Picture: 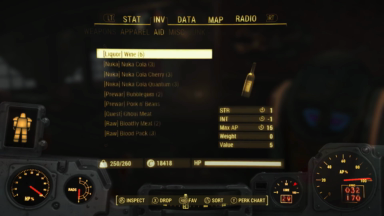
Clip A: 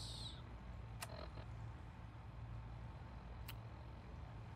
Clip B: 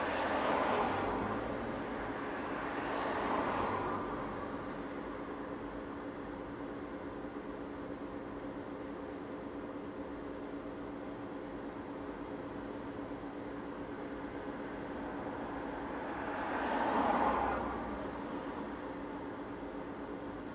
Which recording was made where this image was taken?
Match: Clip A